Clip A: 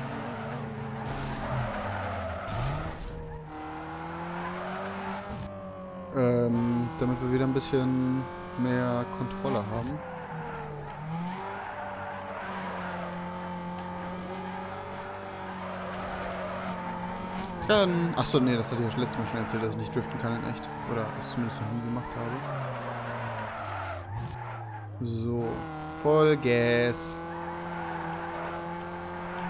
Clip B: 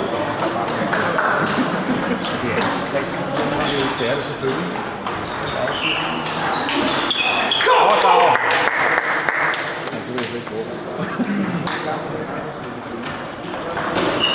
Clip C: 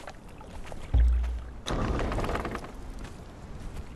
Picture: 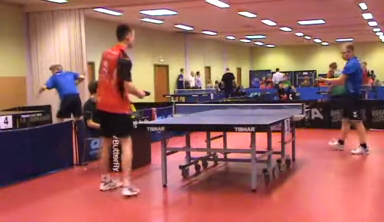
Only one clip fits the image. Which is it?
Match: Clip B